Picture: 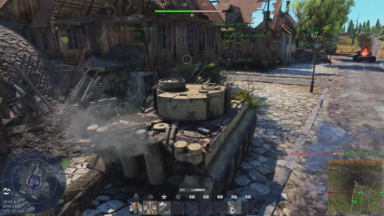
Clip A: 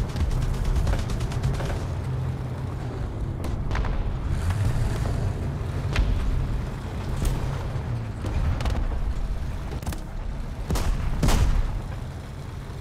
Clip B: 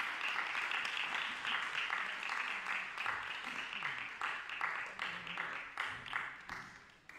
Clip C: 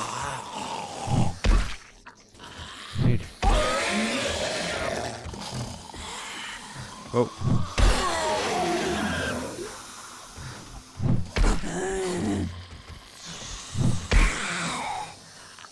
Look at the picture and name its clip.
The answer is A